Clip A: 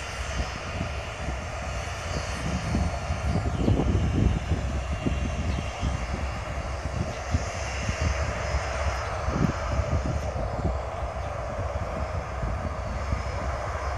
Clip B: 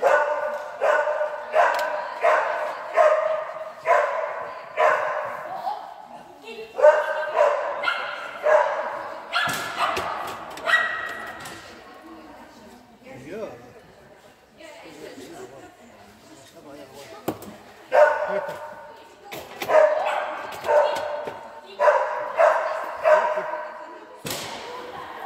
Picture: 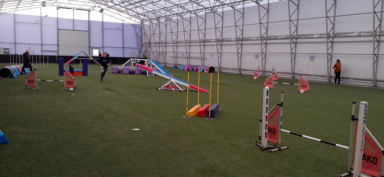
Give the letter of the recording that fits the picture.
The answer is B